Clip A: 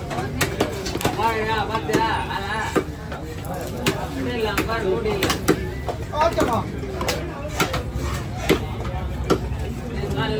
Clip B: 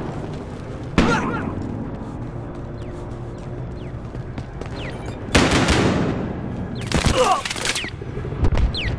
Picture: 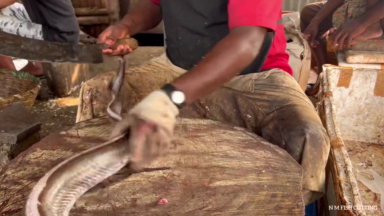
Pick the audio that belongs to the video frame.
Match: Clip A